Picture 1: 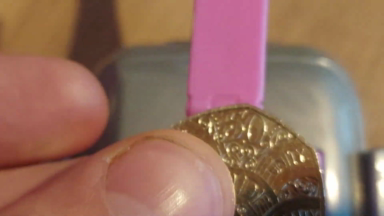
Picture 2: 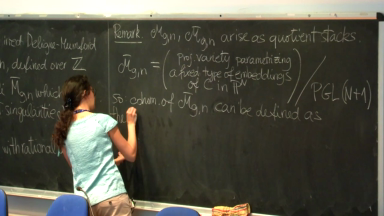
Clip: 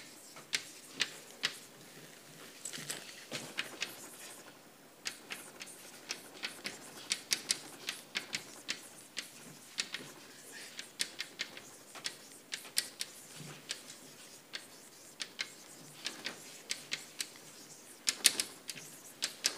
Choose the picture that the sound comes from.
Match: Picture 2